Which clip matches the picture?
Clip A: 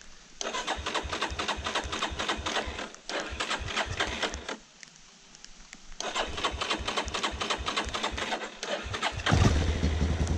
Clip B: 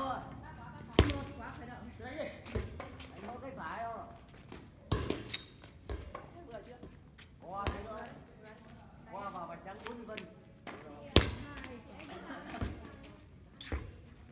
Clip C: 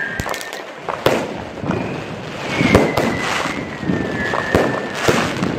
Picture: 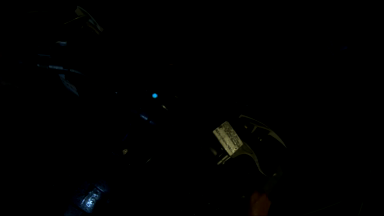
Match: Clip A